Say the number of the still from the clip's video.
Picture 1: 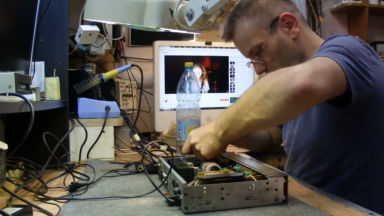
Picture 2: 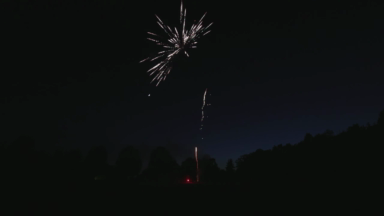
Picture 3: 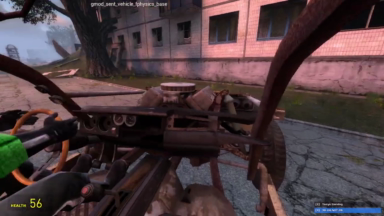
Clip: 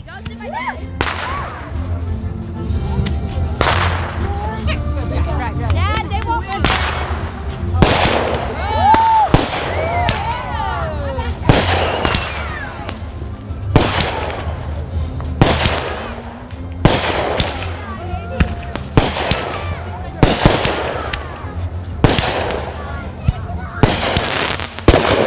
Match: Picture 2